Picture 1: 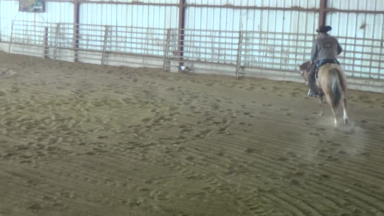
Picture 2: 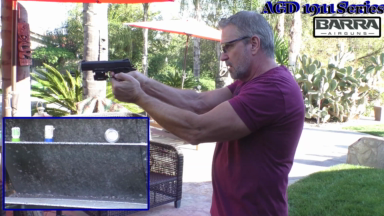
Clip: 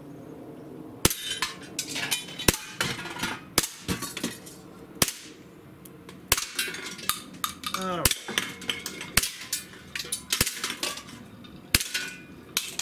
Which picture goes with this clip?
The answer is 2